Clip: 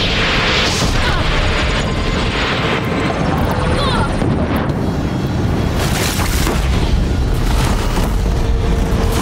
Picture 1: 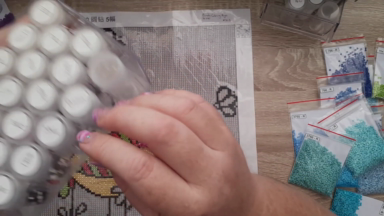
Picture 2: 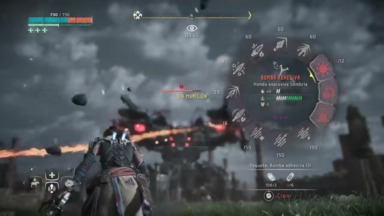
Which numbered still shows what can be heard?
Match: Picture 2